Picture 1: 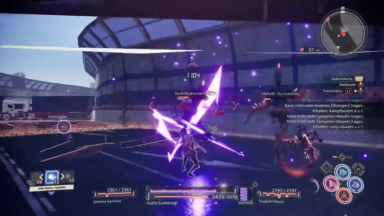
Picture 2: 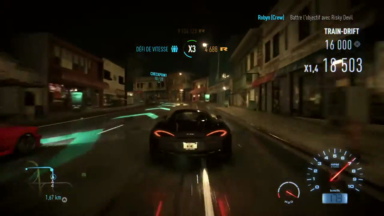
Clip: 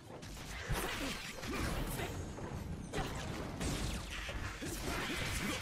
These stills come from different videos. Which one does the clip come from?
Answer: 1